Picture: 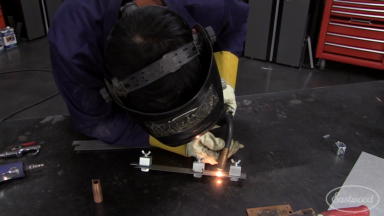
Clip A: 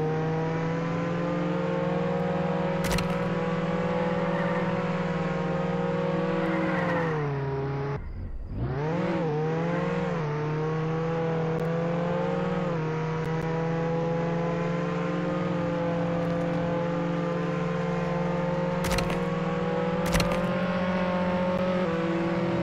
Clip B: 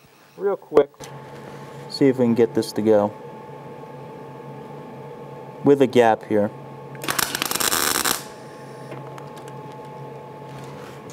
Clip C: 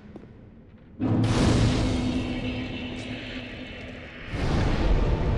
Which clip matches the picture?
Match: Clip B